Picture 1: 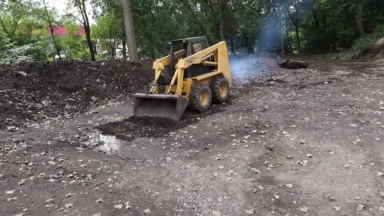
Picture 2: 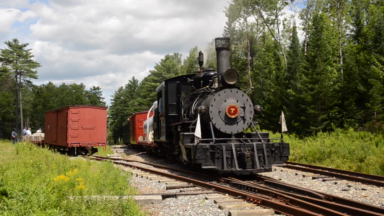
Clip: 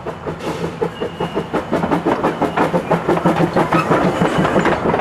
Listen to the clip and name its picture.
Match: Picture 2